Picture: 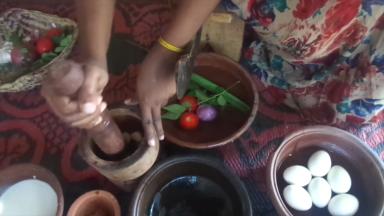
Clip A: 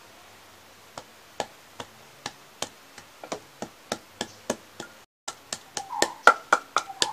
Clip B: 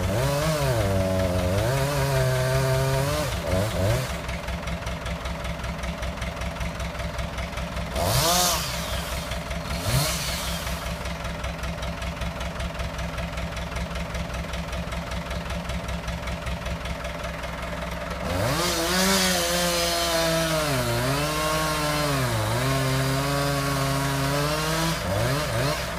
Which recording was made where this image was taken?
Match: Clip A